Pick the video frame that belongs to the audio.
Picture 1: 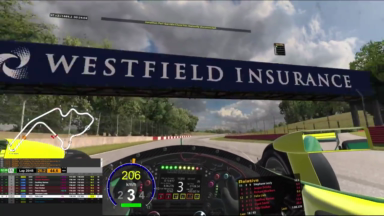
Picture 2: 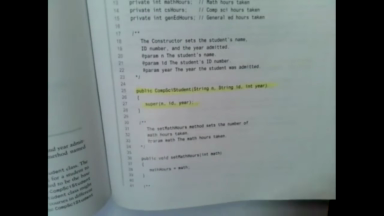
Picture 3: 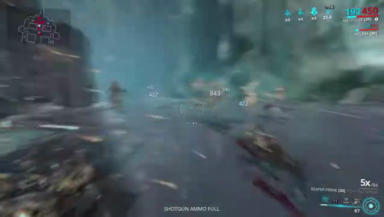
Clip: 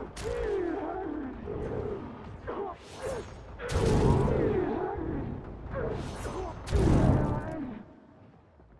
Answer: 3